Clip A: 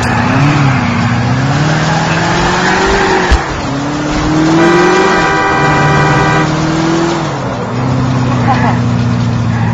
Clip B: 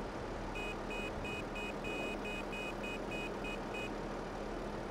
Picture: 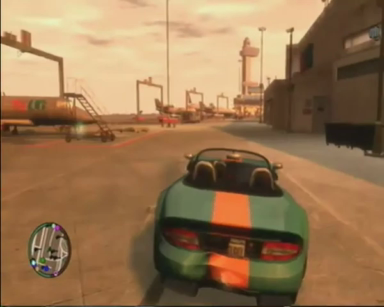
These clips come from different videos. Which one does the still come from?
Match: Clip A